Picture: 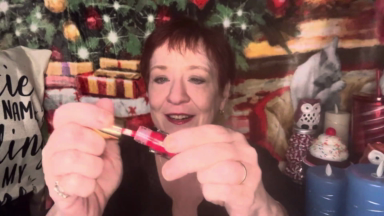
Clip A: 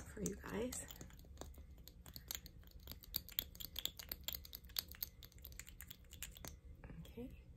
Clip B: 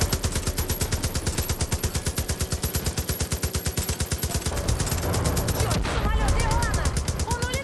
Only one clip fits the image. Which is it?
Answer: A